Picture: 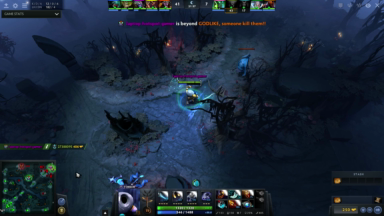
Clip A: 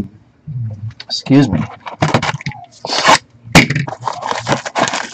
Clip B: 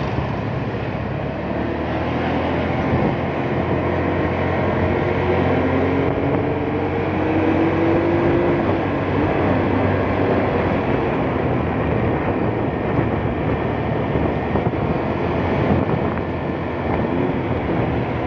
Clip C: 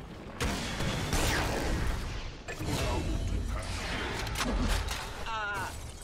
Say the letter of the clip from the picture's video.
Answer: C